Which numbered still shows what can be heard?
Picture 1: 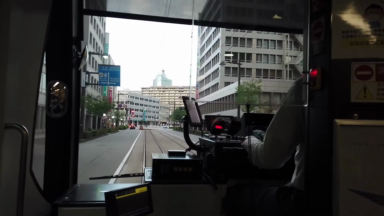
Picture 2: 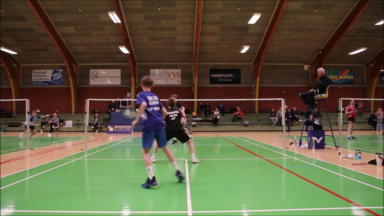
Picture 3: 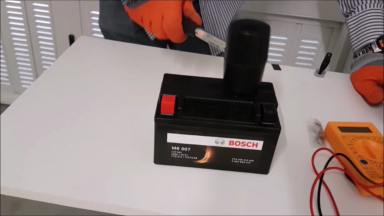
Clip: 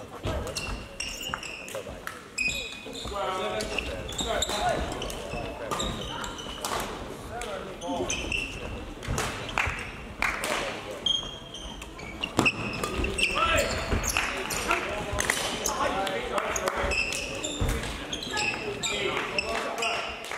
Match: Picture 2